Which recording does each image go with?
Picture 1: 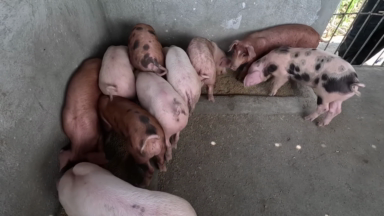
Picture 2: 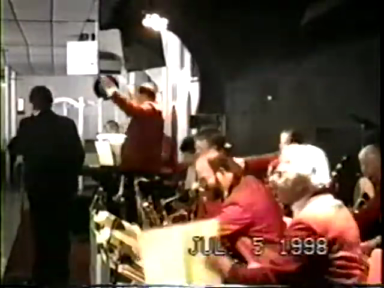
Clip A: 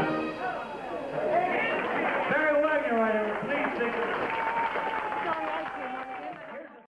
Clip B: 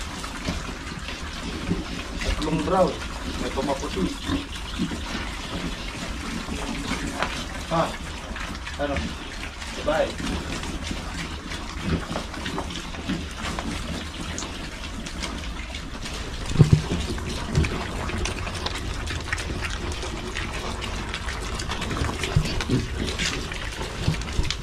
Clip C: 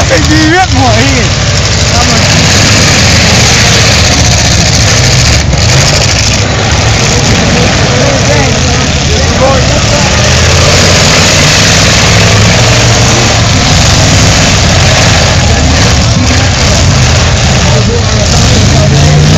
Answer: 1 B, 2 A